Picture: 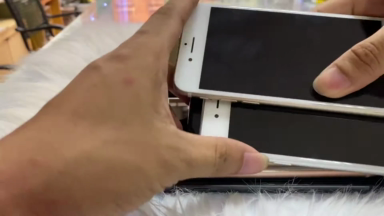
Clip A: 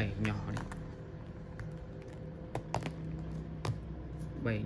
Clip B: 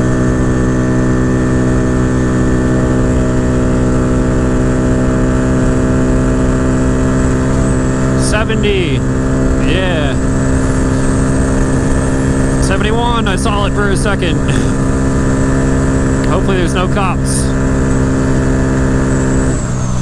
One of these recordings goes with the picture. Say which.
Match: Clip A